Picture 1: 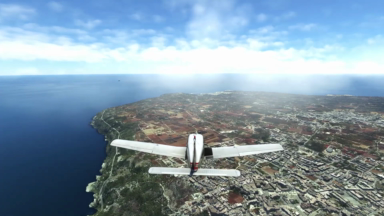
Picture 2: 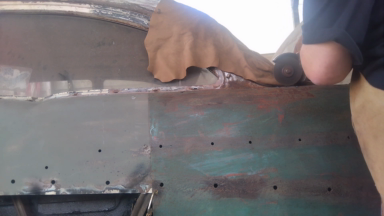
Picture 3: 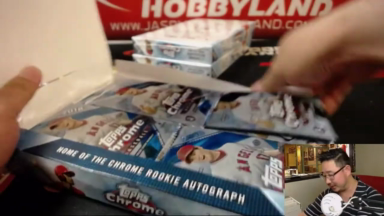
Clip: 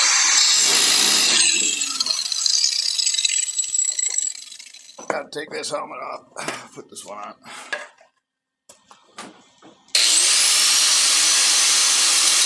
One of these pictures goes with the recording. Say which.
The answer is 2